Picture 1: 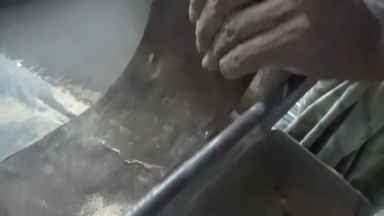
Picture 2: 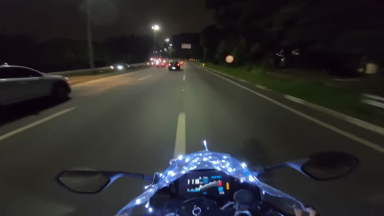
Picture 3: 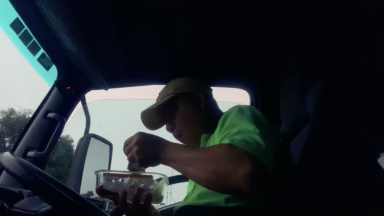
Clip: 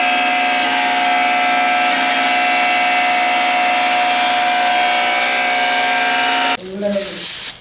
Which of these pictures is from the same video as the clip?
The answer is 1